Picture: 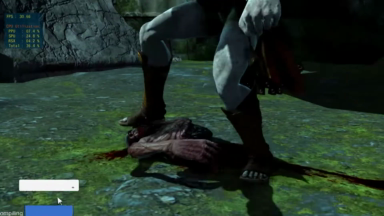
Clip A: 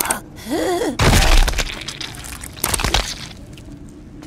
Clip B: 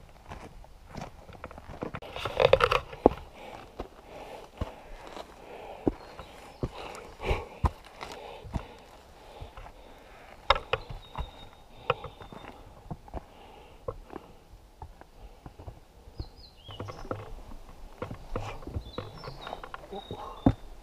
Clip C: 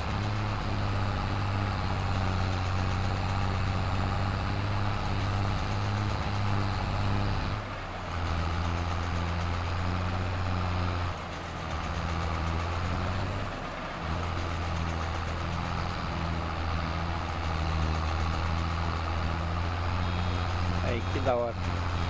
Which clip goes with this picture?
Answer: A